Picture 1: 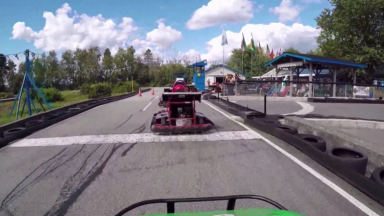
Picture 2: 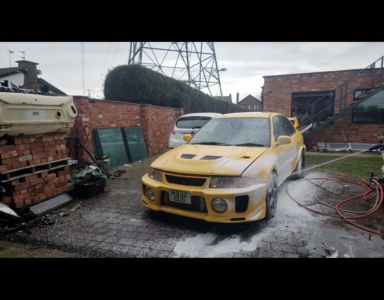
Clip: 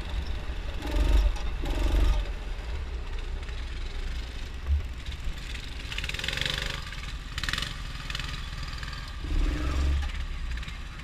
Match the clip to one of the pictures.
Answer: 1